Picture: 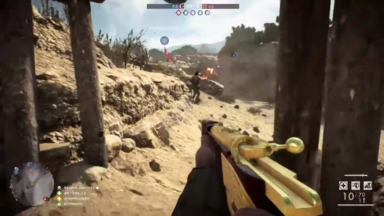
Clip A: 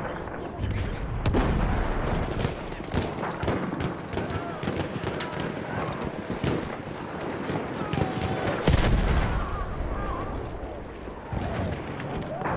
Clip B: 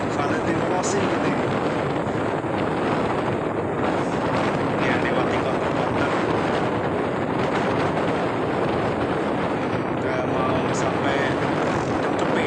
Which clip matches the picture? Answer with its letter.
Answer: A